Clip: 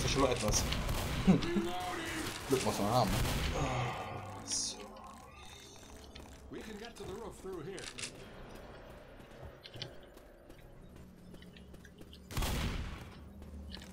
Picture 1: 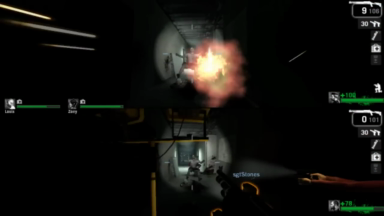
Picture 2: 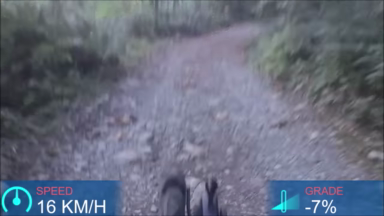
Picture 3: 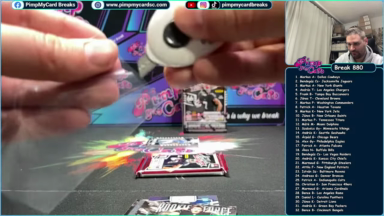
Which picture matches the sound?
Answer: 1